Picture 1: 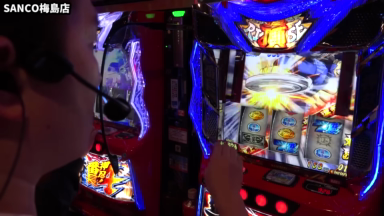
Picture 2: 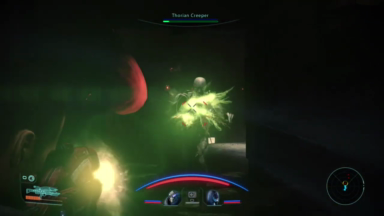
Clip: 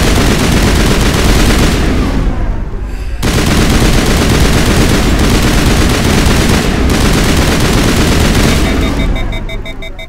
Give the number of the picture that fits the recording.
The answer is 2